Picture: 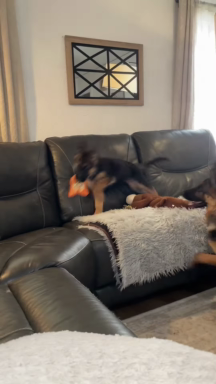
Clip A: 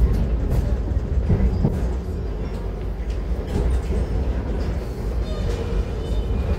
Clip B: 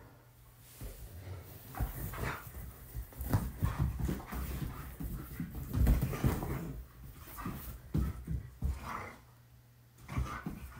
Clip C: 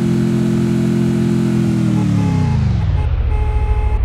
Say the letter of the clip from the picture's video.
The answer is B